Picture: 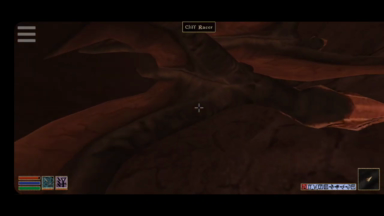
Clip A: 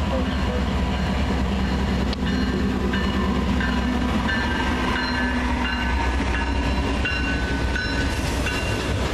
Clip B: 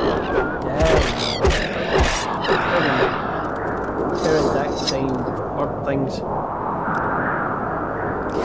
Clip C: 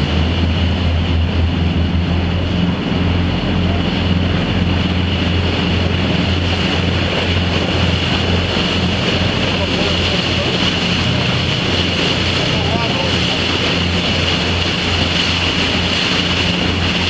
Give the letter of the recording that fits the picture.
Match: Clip B